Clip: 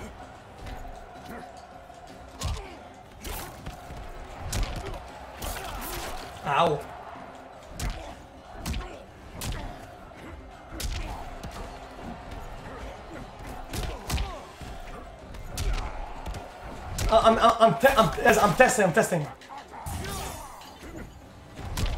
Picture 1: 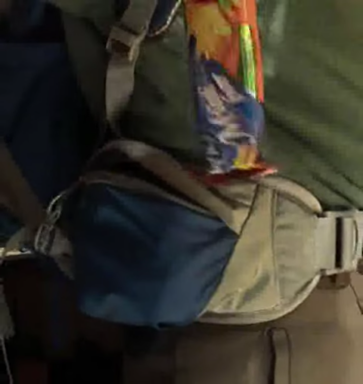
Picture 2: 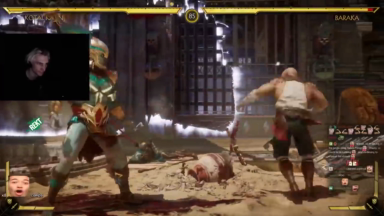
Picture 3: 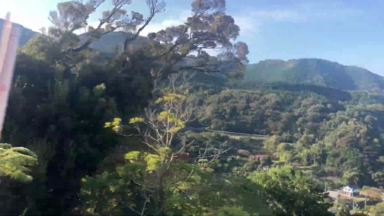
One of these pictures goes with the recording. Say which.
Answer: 2